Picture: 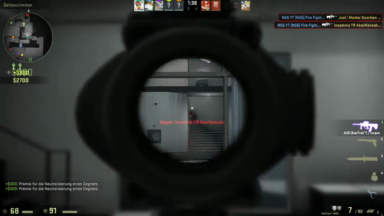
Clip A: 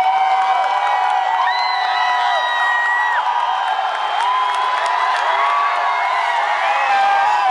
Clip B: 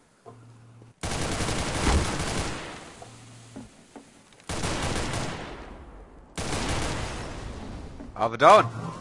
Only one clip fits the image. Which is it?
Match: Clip B